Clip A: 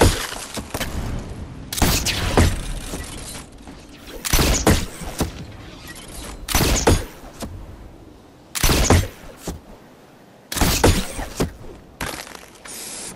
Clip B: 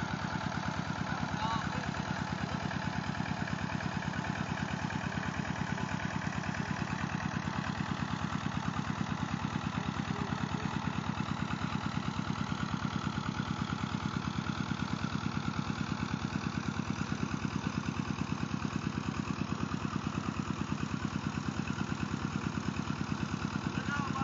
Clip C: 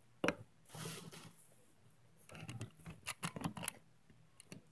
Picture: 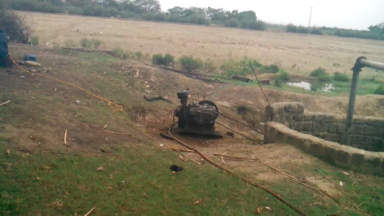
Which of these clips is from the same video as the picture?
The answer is B